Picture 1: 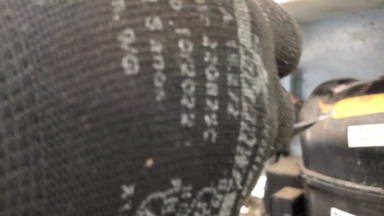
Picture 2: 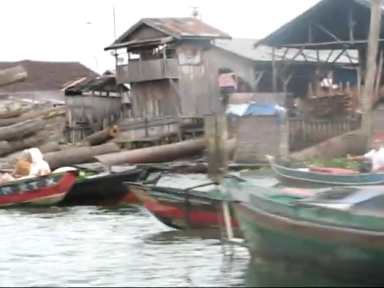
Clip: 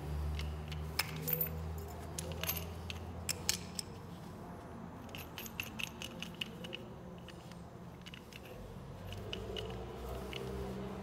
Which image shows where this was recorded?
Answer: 1